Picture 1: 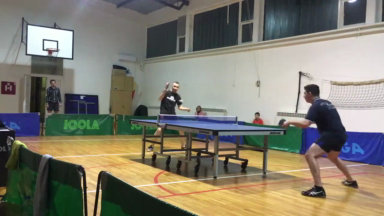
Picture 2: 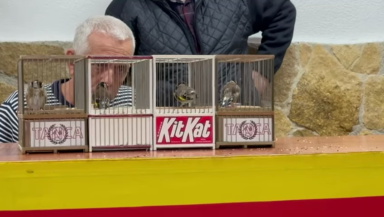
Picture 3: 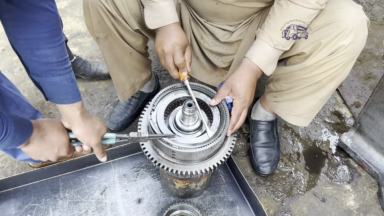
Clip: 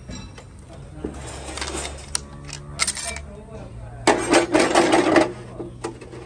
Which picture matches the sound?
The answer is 3